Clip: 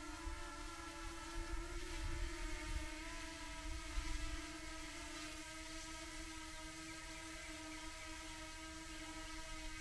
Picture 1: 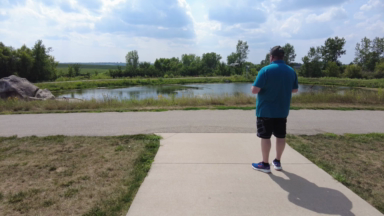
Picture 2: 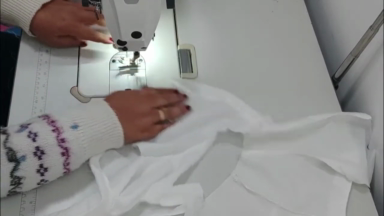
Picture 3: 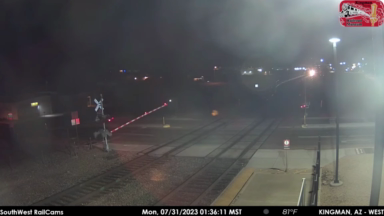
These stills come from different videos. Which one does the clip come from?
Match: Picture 1